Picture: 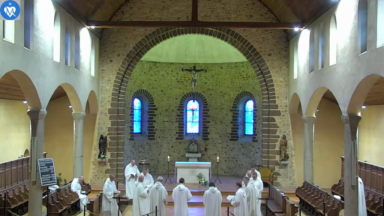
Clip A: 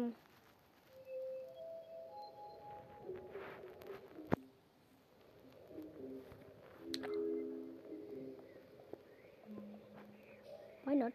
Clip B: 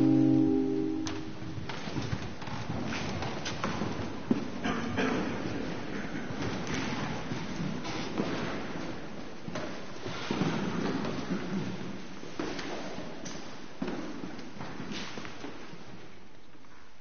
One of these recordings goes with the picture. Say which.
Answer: B